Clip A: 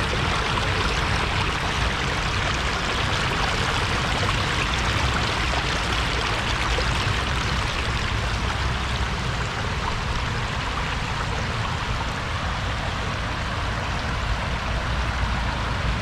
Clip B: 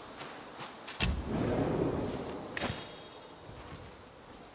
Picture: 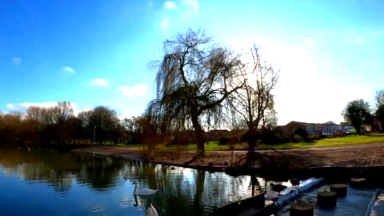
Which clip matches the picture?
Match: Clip A